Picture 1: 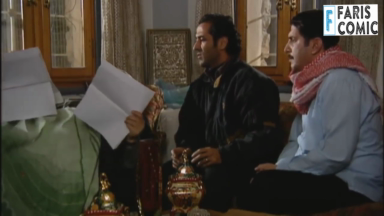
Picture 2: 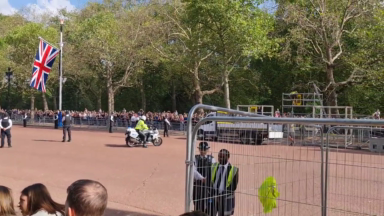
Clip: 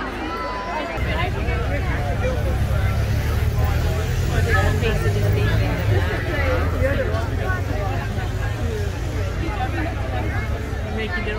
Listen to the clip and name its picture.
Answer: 2